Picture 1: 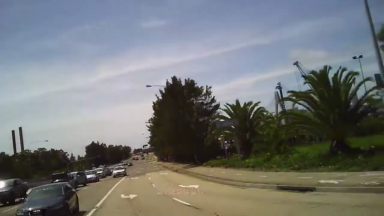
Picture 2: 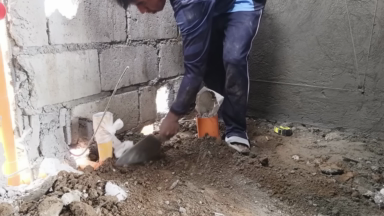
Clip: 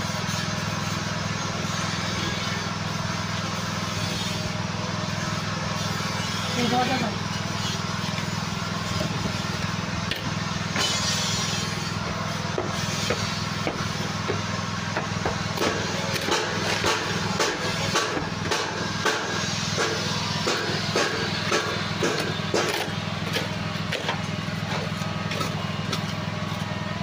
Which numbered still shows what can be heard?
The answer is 2